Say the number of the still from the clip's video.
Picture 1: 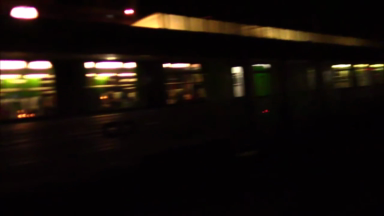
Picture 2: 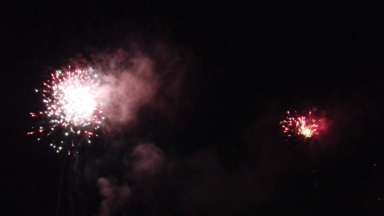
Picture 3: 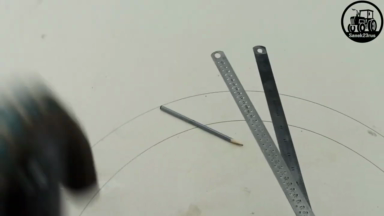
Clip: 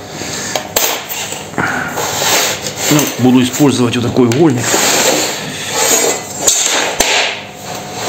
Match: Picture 3